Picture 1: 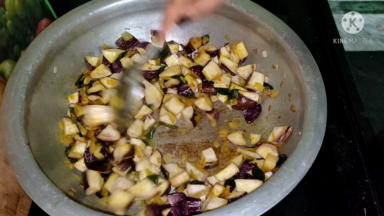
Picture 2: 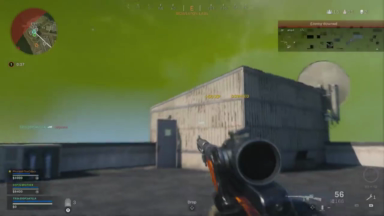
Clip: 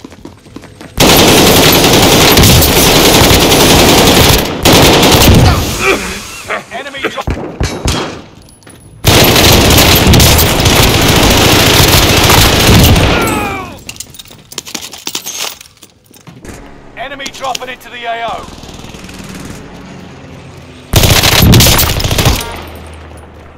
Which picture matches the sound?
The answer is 2